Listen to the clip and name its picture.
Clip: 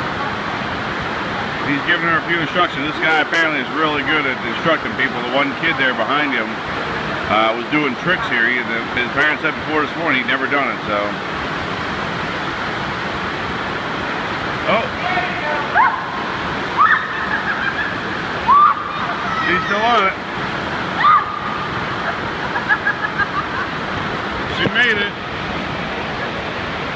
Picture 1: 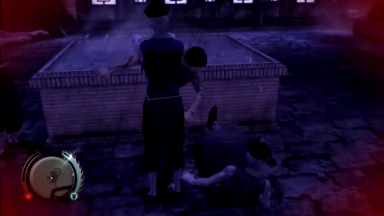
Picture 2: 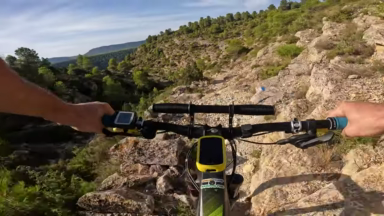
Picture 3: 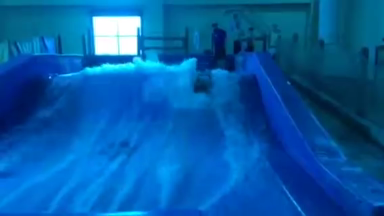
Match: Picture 3